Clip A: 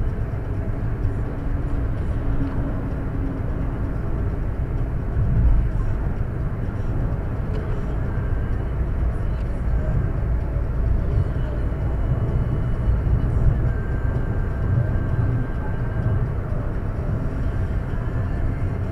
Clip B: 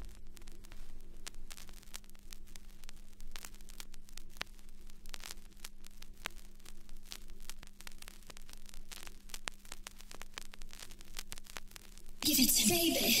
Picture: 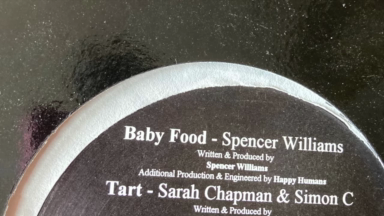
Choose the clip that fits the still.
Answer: B